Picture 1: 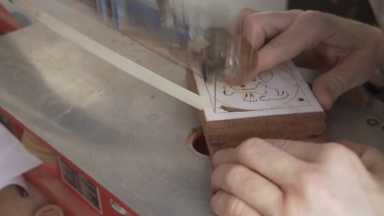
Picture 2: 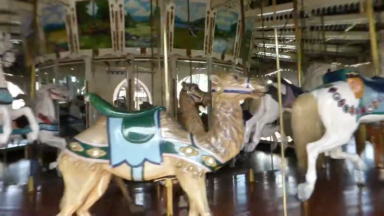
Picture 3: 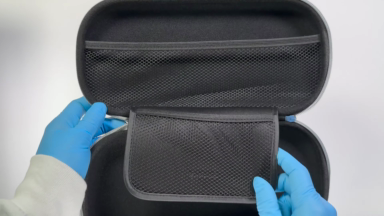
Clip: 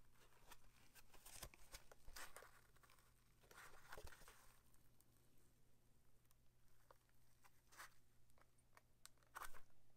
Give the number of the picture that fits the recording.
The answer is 3